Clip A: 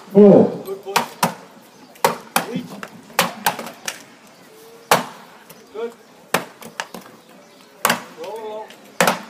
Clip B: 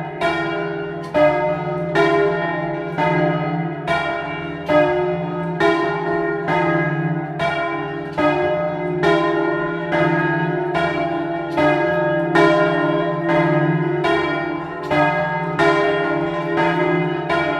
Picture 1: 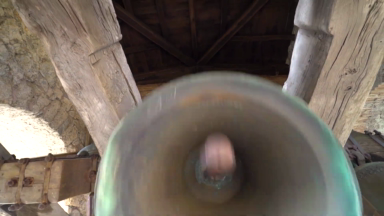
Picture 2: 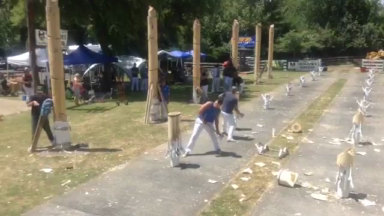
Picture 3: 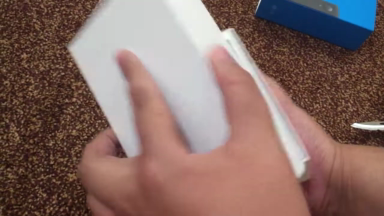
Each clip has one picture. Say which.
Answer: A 2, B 1